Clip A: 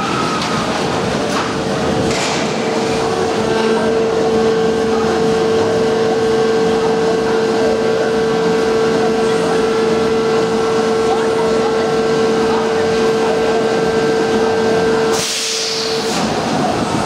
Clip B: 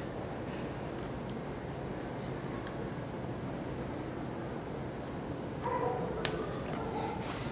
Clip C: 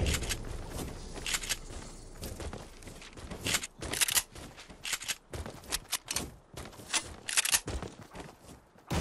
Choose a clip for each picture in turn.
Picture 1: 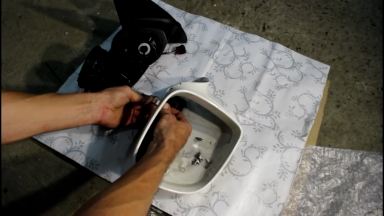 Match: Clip B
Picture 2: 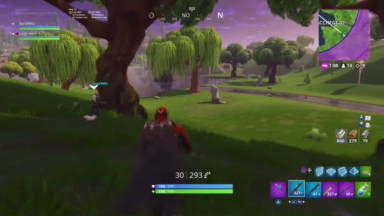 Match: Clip C